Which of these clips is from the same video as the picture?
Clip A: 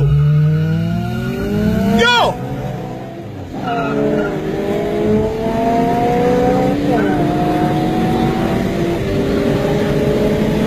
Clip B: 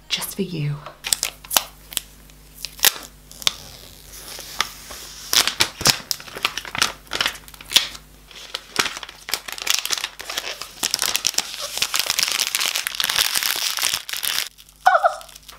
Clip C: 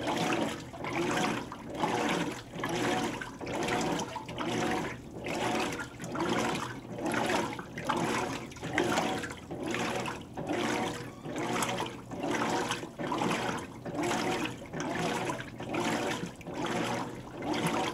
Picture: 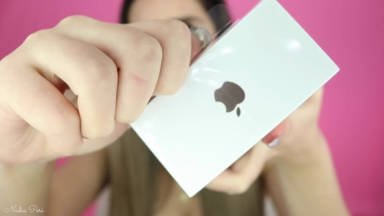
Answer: B